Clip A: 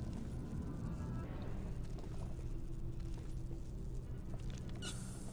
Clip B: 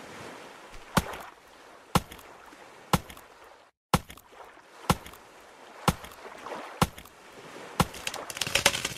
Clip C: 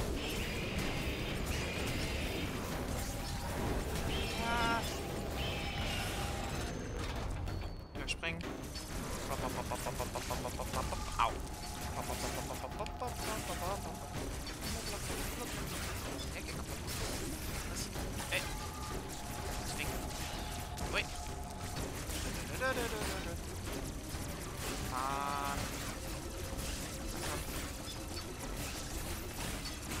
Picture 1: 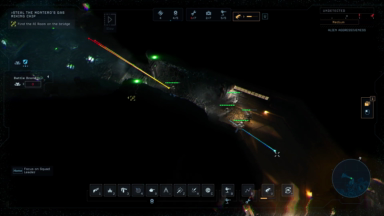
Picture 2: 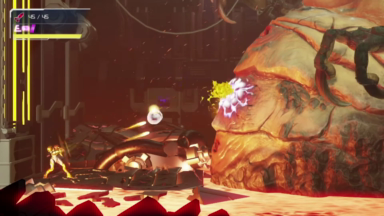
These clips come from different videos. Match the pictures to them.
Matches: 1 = A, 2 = C